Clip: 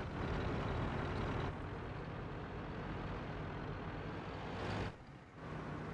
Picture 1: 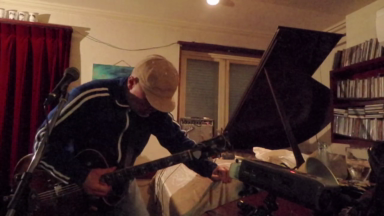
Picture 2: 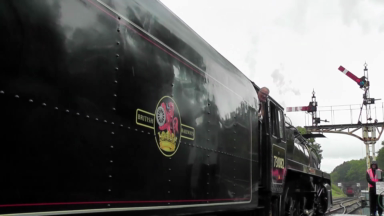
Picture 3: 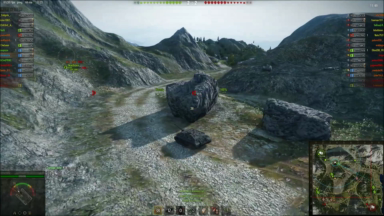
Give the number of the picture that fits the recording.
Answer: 3